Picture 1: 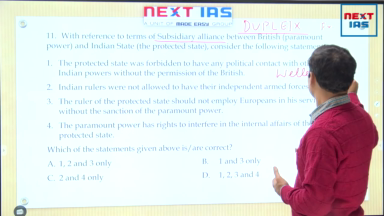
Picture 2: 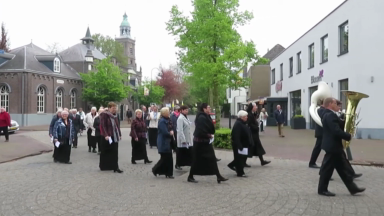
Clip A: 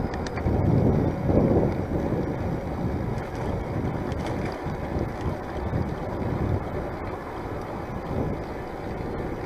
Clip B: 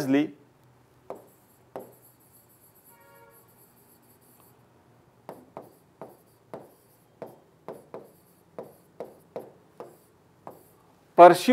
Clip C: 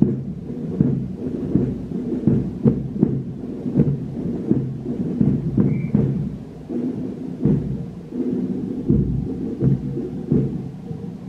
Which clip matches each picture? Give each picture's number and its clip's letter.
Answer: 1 B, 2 C